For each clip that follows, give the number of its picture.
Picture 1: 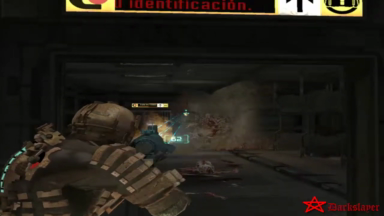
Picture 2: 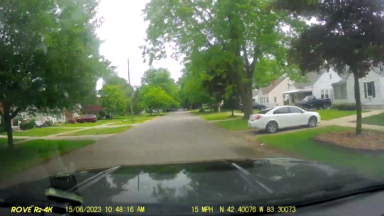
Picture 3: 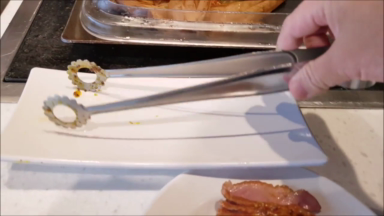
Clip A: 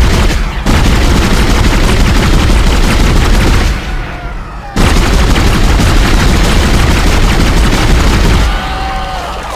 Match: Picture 1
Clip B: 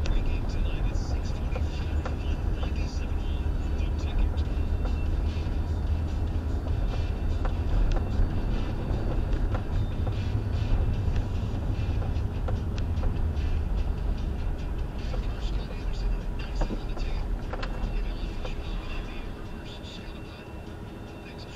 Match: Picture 2